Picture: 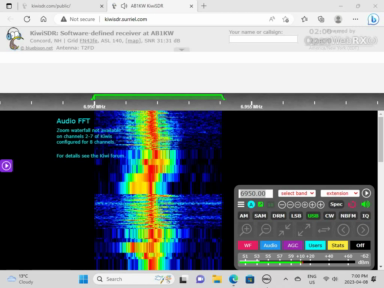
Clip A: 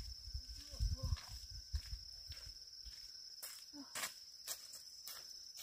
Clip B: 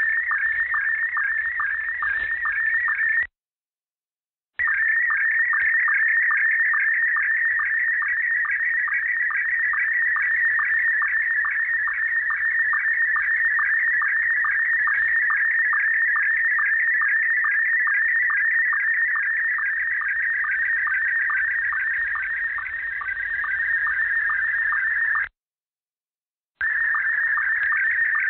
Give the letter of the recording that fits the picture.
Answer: B